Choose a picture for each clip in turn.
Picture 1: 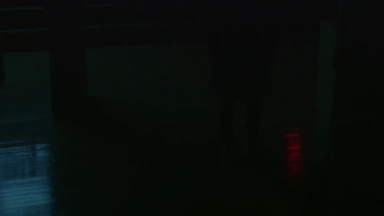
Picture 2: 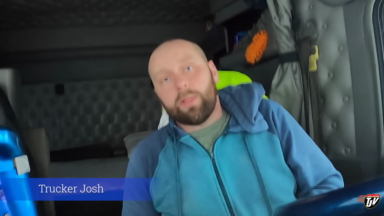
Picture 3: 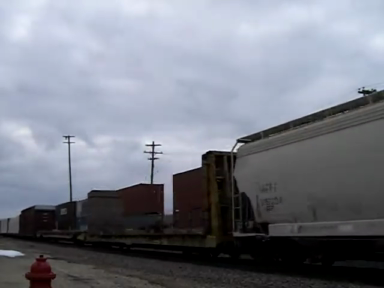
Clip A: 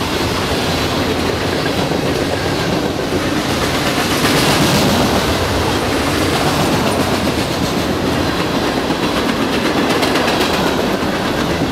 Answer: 3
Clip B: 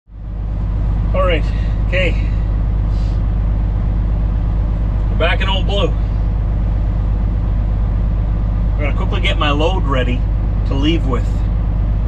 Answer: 2